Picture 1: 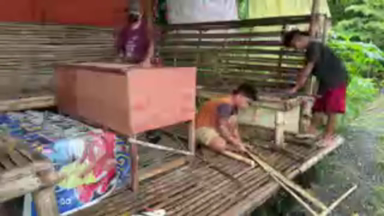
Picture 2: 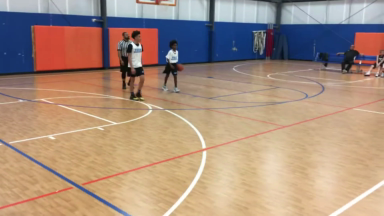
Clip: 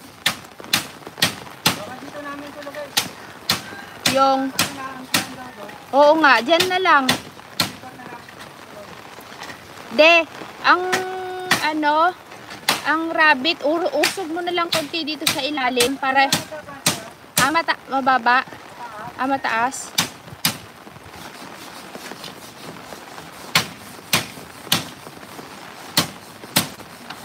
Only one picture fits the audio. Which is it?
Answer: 1